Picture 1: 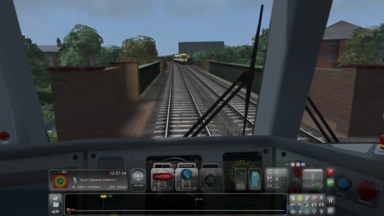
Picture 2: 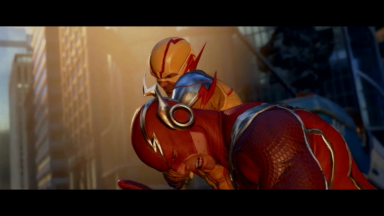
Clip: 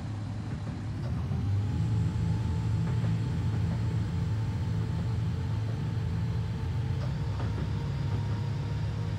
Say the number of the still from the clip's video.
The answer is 1